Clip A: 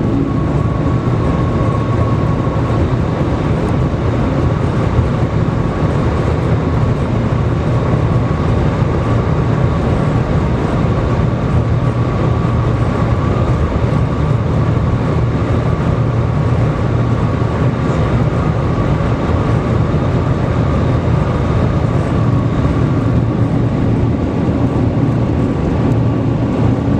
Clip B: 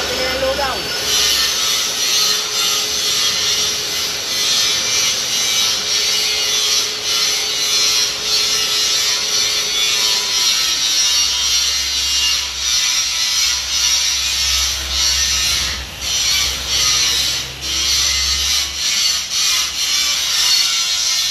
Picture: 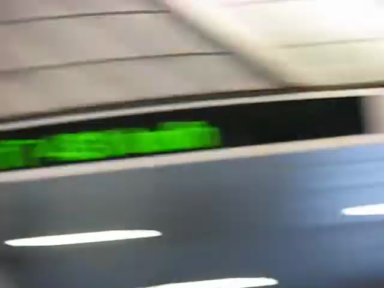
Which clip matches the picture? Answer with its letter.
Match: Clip A